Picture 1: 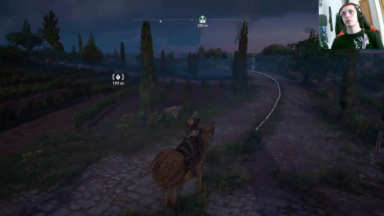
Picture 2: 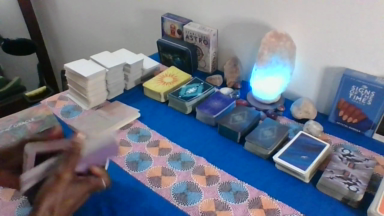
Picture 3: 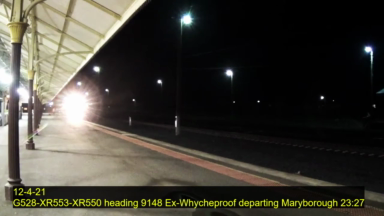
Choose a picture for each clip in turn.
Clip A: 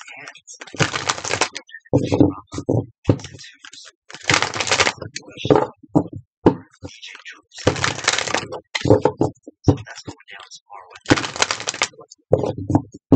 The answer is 2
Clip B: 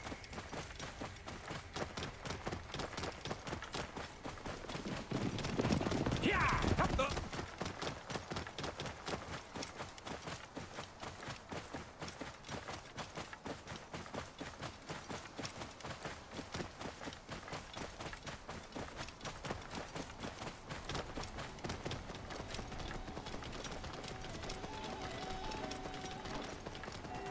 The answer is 1